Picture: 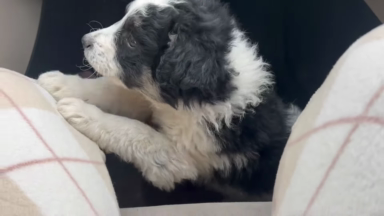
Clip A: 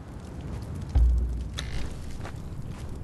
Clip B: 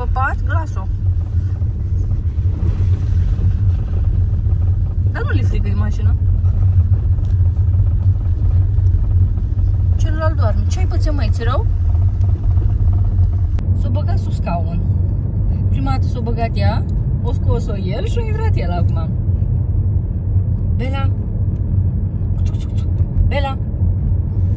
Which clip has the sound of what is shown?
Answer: B